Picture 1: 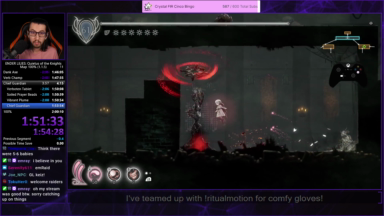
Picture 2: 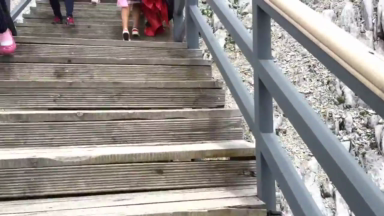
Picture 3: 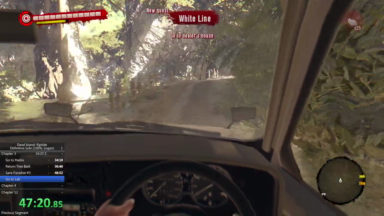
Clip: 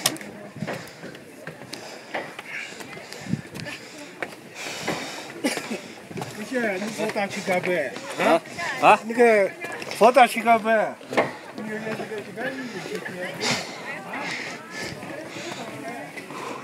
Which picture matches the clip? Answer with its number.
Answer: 2